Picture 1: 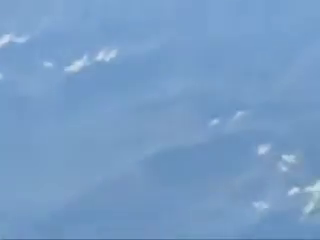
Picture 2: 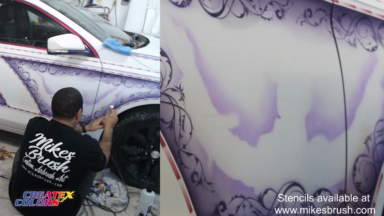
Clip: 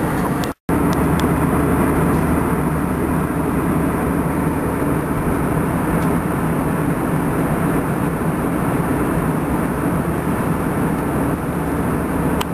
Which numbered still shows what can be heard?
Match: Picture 1